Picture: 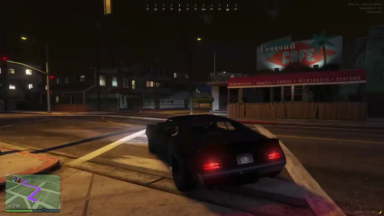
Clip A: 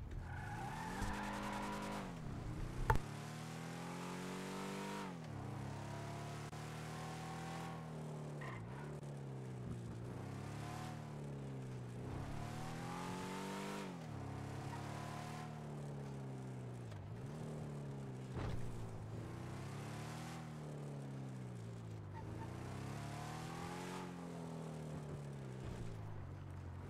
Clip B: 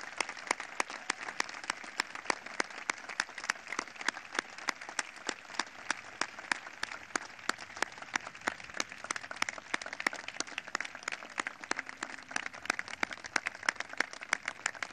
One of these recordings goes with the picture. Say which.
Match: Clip A